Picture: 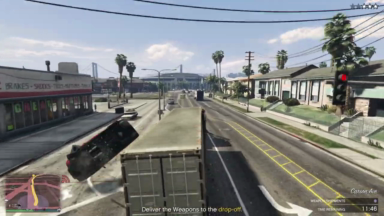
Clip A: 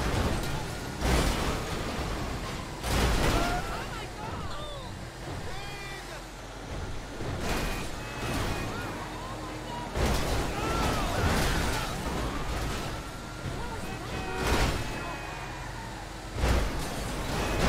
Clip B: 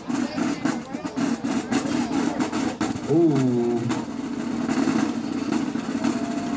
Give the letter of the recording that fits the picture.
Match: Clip A